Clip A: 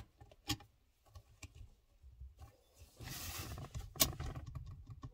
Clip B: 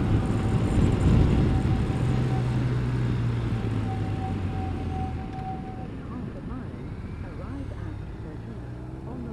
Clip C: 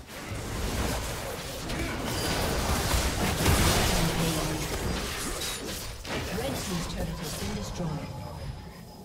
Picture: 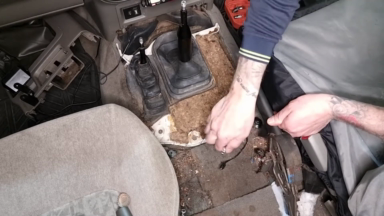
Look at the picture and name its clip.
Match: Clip A